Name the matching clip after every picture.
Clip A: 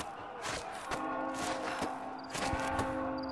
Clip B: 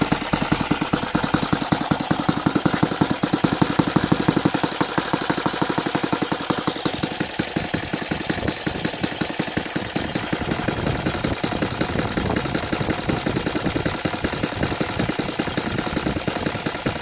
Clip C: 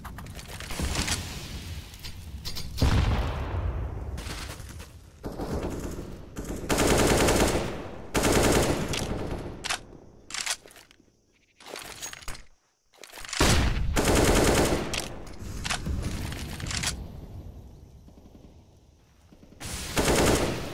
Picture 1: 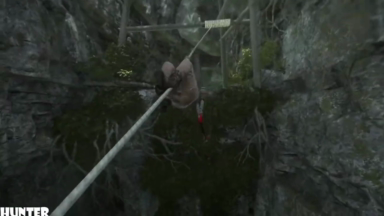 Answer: A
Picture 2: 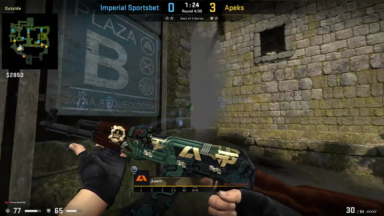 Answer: C